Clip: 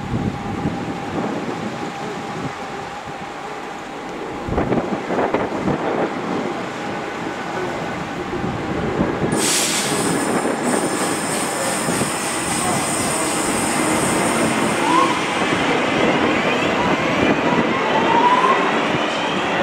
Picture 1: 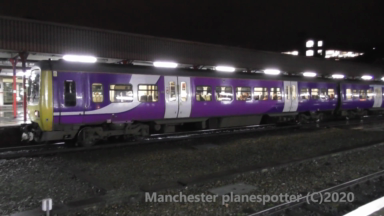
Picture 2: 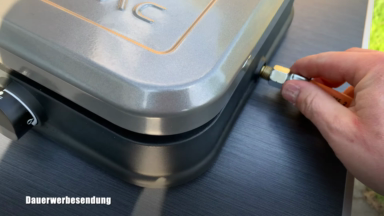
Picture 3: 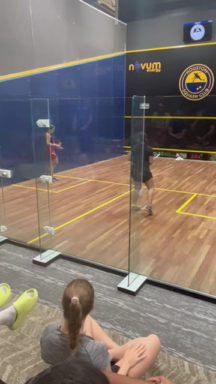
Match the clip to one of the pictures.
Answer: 1